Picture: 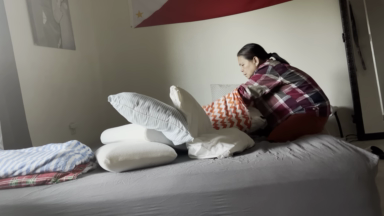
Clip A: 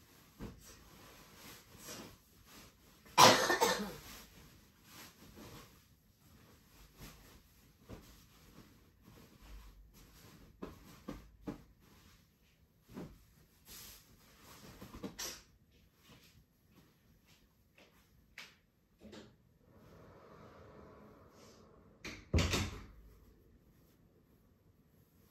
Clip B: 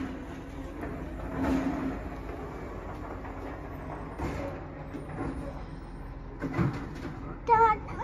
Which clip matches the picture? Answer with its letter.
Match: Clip A